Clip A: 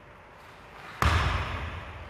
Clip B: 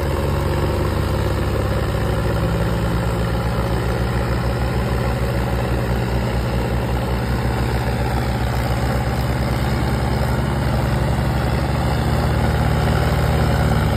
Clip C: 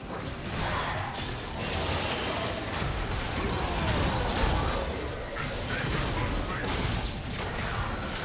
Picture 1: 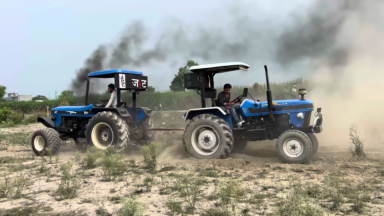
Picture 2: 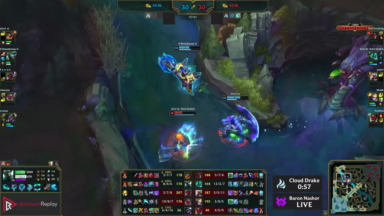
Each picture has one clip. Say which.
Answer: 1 B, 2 C